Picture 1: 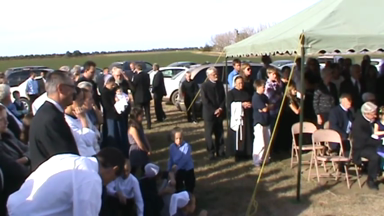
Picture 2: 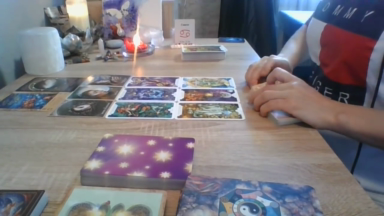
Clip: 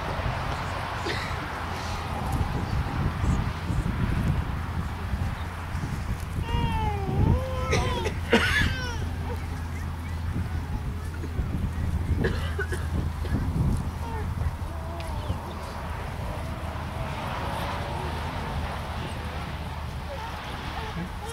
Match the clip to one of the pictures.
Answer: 1